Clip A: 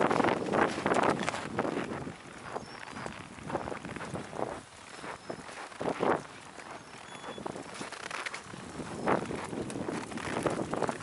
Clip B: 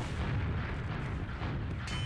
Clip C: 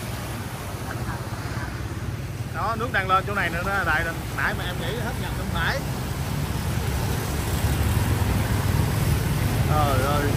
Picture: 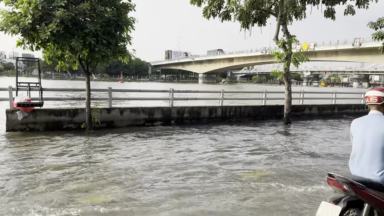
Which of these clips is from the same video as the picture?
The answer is C